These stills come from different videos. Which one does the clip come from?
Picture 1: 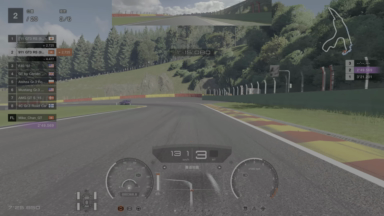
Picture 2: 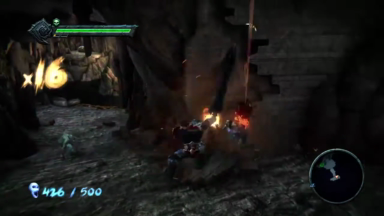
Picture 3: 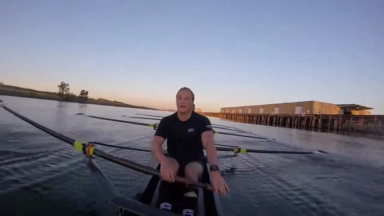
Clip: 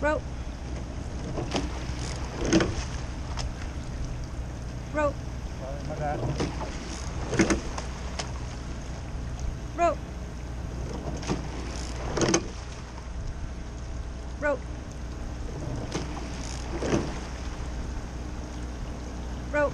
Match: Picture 3